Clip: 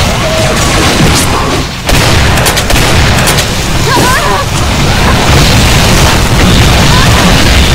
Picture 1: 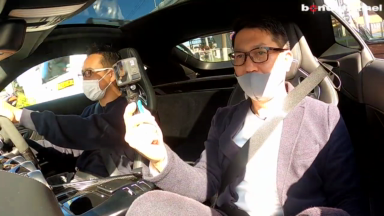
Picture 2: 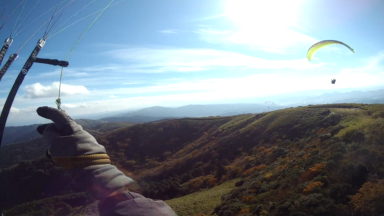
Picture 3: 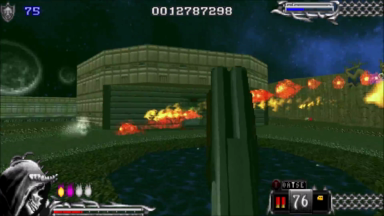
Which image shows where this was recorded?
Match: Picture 3